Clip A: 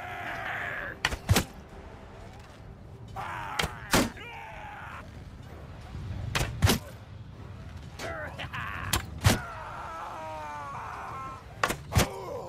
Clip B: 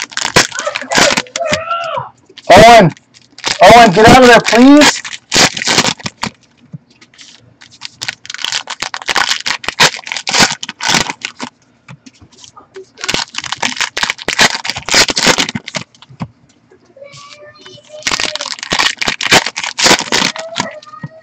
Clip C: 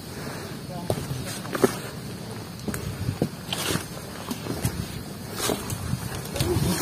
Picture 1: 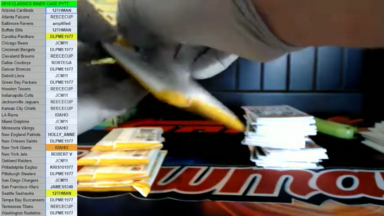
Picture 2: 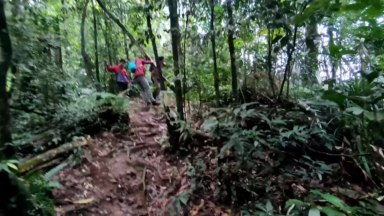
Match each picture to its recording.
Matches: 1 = B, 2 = C